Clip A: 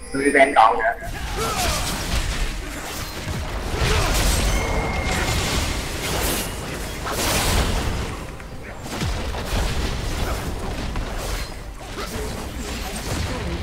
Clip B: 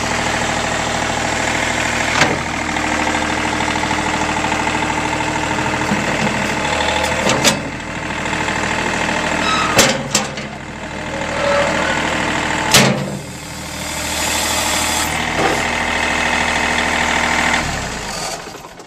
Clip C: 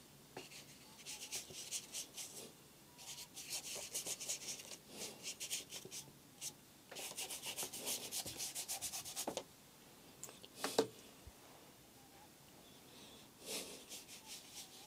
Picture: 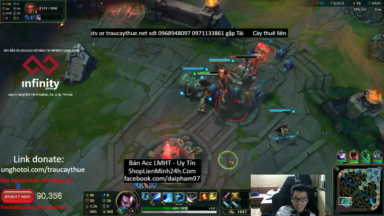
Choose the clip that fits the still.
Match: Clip A